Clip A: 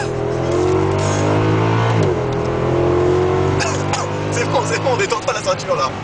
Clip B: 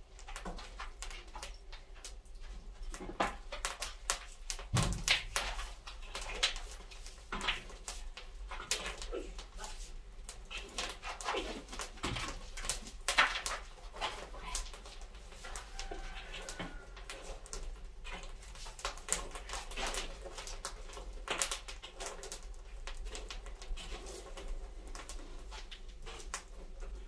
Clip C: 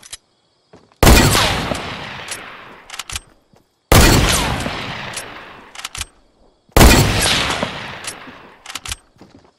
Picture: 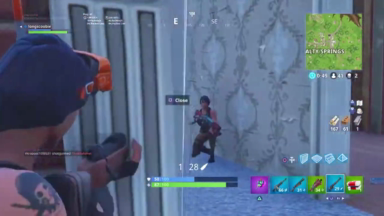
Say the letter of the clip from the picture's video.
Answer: C